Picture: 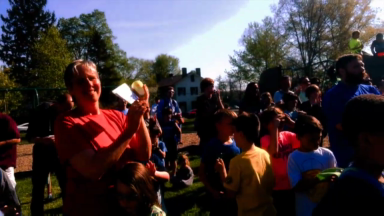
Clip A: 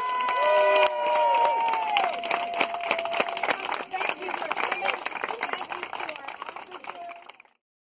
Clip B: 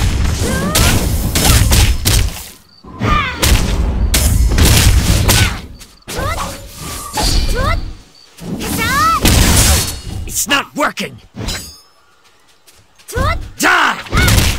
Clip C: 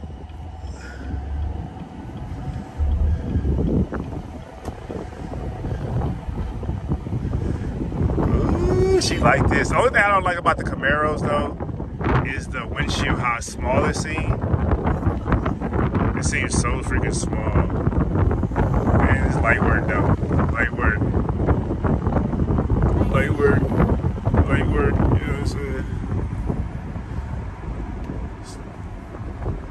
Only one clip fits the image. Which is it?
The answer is A